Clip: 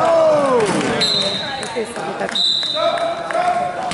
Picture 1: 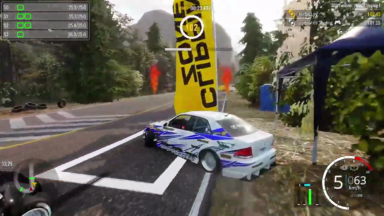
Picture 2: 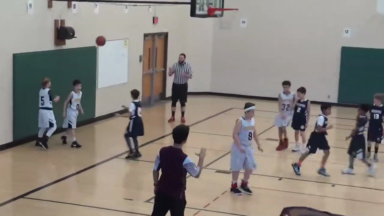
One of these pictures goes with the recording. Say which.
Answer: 2